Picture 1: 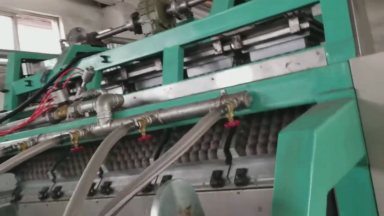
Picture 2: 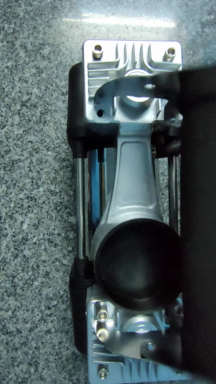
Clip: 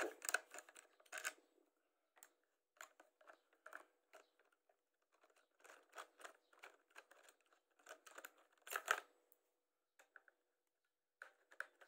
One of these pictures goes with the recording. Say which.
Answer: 2